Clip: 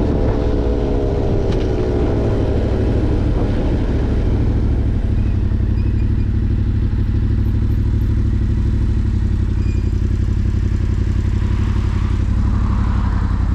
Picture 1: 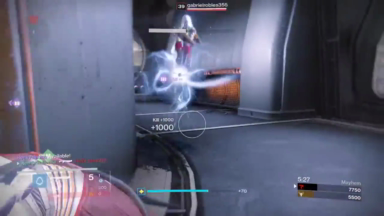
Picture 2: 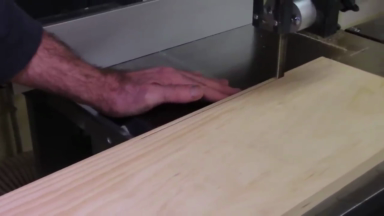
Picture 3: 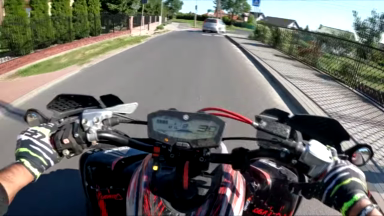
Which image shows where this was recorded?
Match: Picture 3